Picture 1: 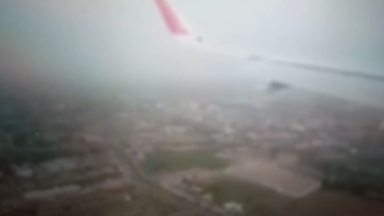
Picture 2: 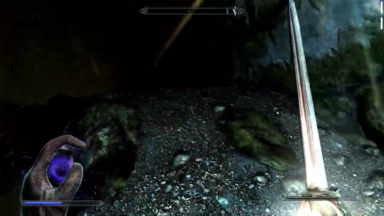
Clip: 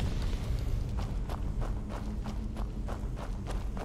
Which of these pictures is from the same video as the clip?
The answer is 2